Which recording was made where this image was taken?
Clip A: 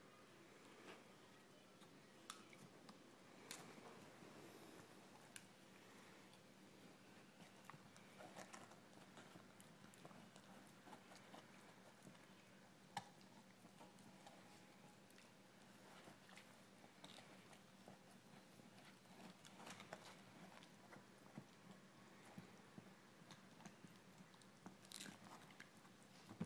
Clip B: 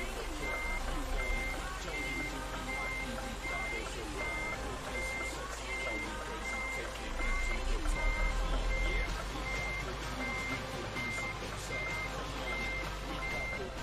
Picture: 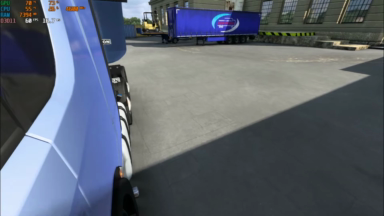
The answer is B